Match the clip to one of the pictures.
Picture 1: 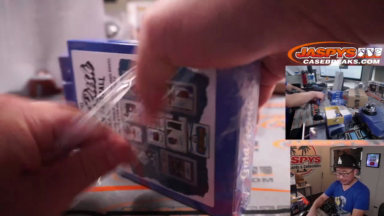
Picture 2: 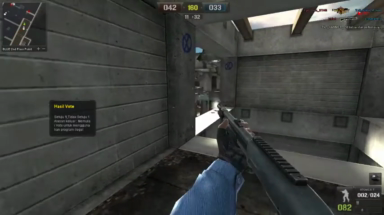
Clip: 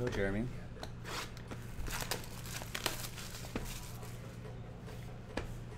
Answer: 1